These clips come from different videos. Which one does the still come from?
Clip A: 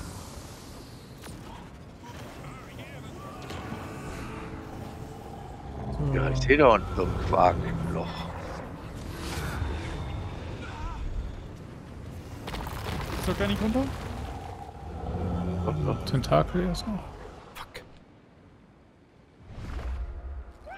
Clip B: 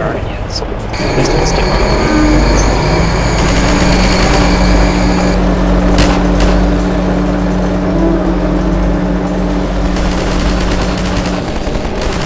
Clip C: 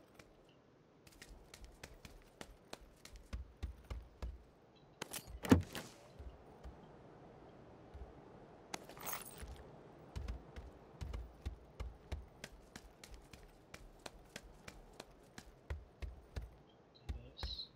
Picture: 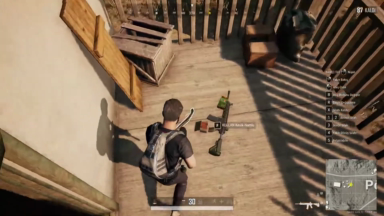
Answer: C